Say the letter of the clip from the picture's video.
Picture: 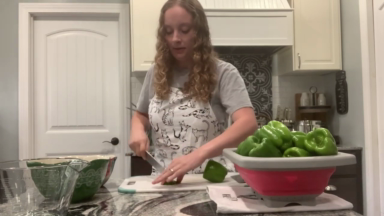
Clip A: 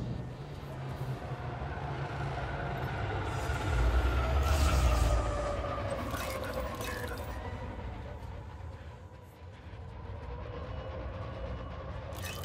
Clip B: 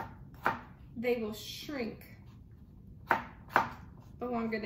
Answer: B